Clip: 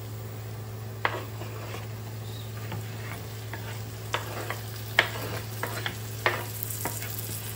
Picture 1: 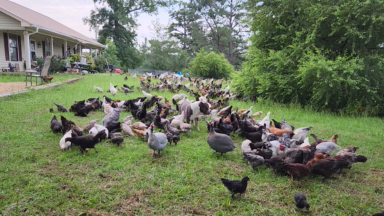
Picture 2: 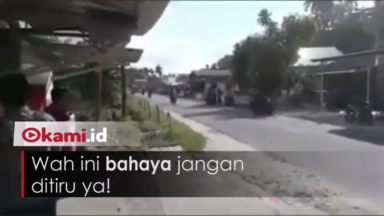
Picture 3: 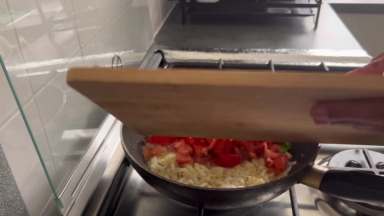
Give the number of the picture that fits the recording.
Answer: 3